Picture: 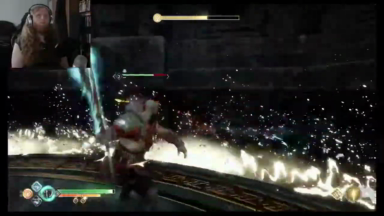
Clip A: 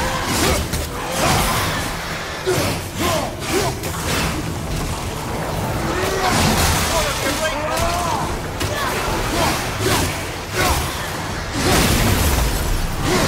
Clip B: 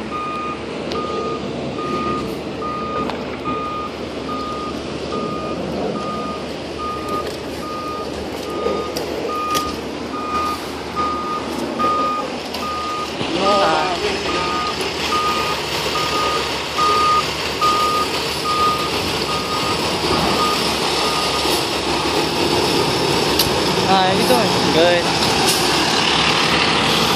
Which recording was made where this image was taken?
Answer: A